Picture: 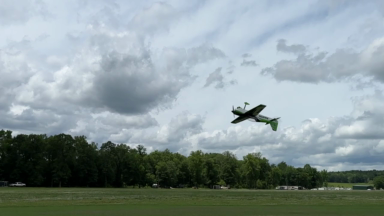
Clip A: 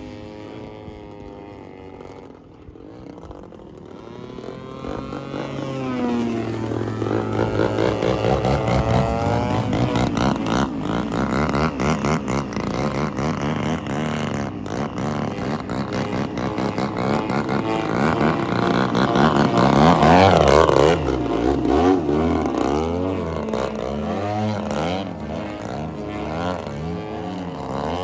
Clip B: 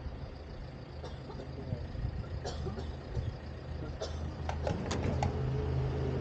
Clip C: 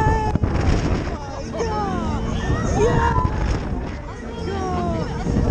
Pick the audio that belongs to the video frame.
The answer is A